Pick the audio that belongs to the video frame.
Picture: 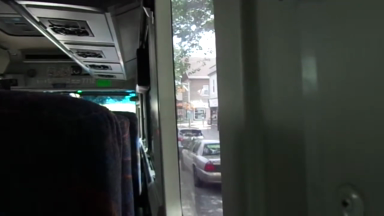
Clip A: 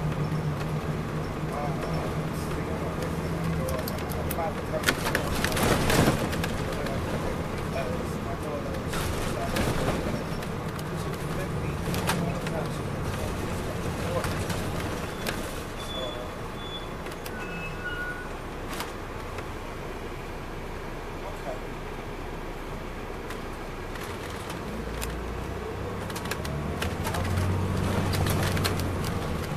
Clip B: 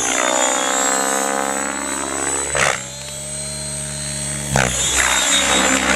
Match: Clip A